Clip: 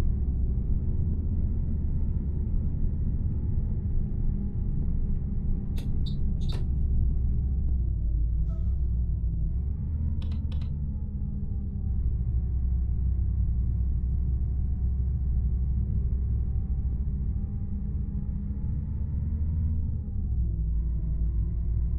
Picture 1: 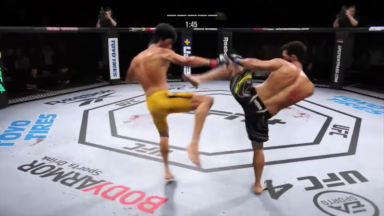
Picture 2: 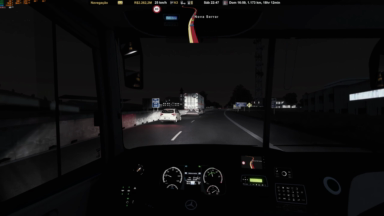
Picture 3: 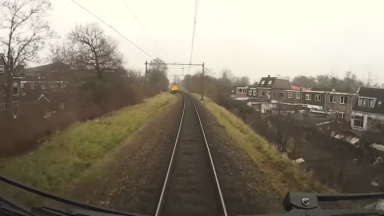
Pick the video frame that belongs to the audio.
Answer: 2